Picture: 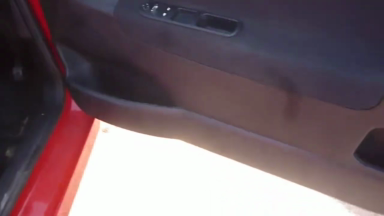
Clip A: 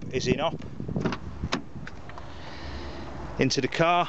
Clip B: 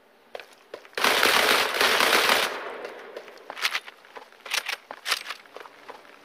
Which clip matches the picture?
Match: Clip A